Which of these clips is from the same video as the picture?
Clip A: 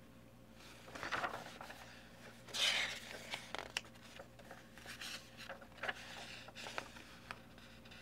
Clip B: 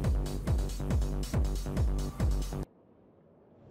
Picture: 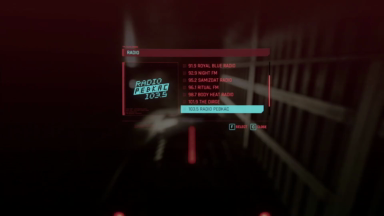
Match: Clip B